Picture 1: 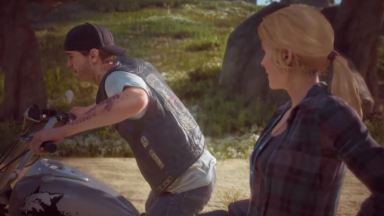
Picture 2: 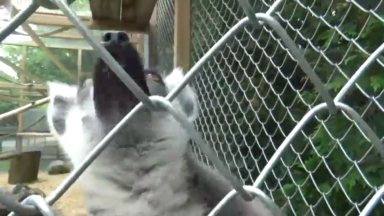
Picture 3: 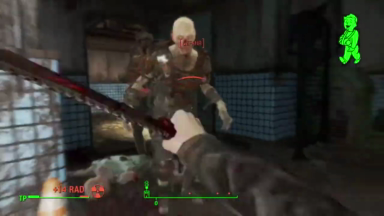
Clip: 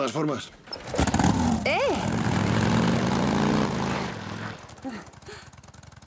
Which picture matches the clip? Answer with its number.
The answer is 1